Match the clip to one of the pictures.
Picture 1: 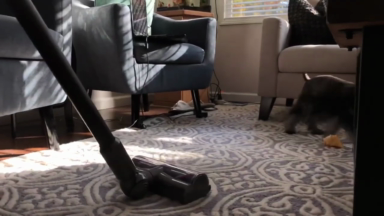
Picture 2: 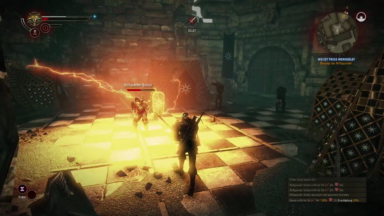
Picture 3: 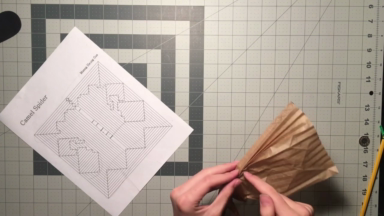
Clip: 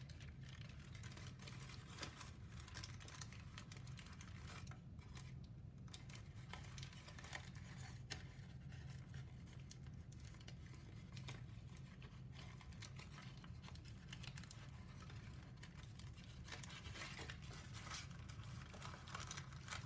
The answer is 3